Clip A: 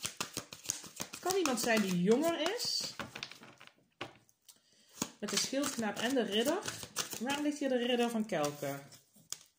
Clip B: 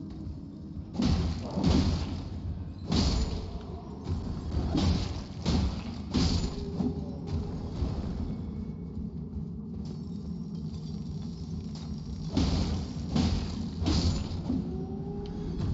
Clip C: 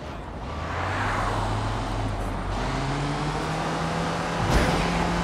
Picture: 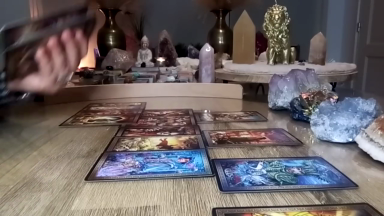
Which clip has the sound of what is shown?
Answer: A